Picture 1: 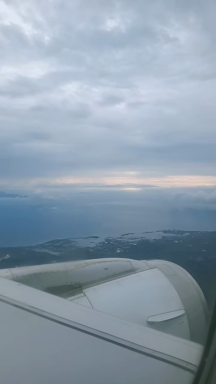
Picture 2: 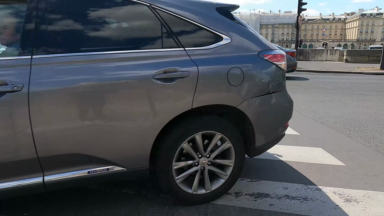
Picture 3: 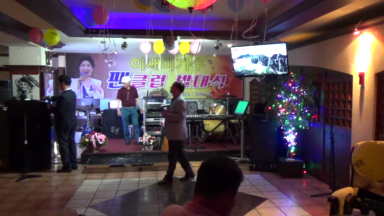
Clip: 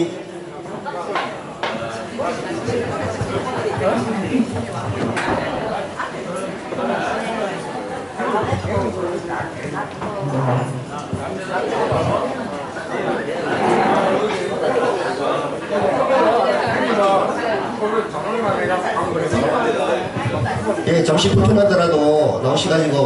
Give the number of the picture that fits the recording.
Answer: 3